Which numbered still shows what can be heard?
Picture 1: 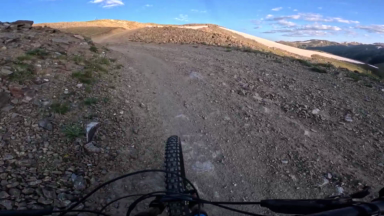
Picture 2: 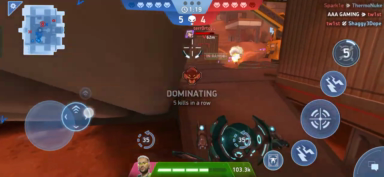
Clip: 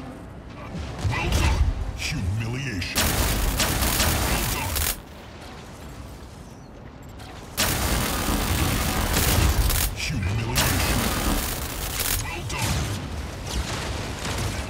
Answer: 2